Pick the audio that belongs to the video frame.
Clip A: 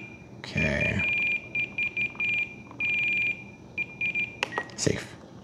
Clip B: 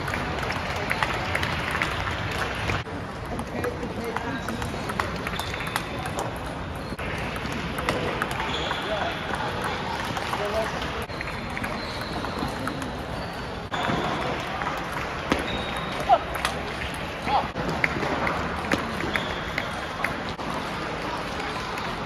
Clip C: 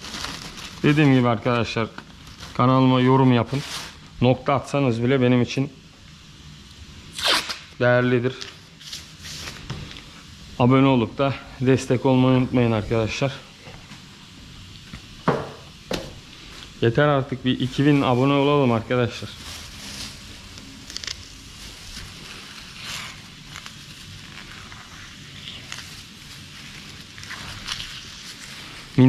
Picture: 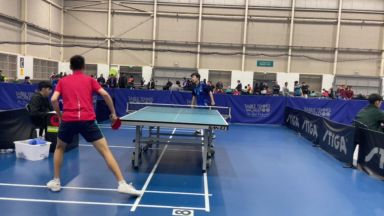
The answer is B